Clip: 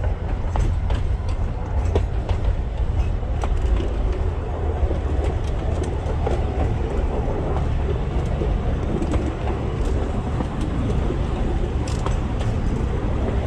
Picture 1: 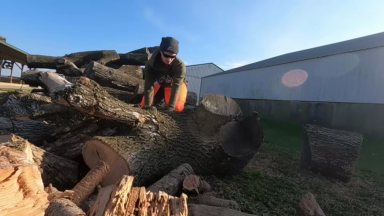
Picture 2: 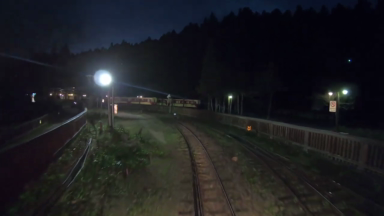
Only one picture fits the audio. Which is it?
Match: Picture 2